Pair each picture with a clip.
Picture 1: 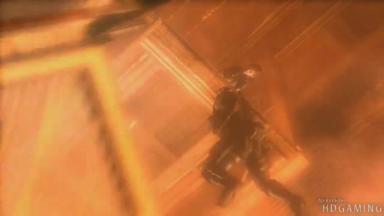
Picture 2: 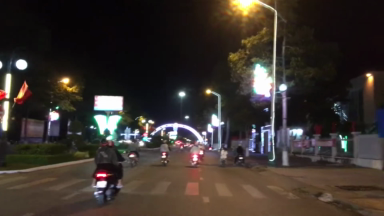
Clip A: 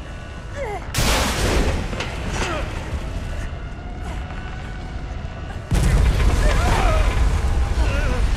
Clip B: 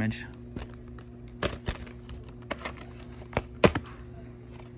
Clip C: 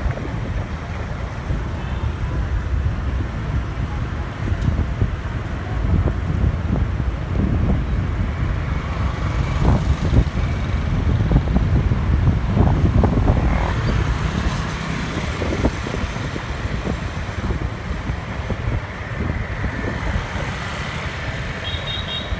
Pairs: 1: A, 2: C